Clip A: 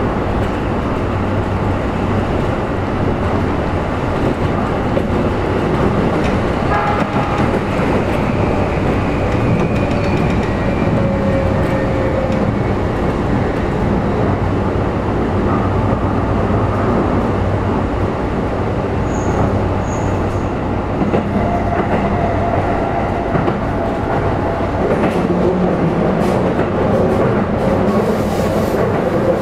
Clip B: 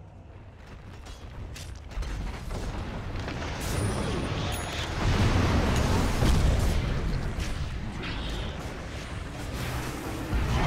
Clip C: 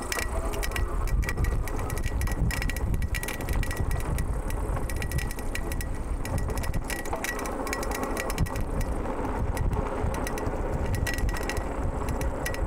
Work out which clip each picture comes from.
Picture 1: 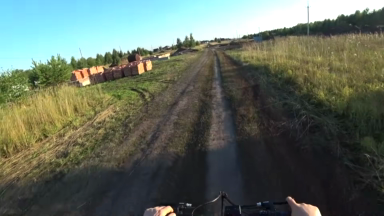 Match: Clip C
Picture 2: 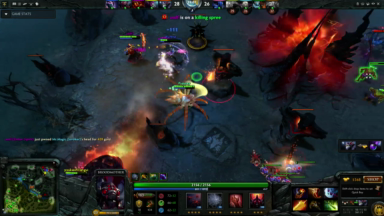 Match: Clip B